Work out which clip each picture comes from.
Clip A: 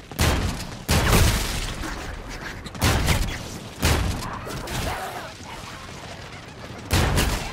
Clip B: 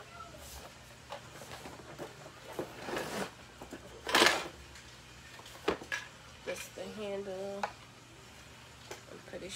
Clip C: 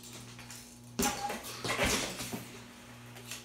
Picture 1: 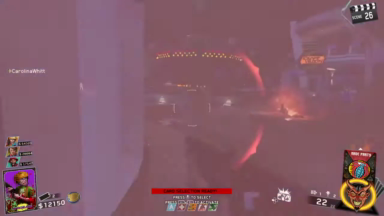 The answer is A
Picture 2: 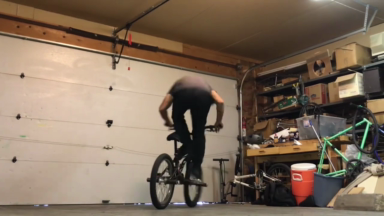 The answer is C